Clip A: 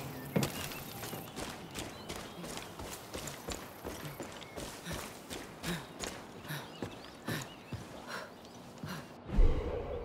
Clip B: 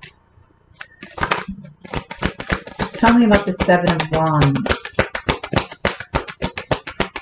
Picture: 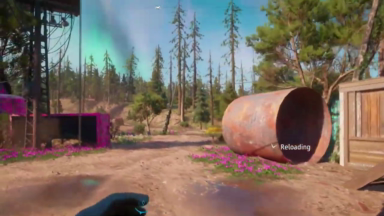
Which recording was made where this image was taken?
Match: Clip A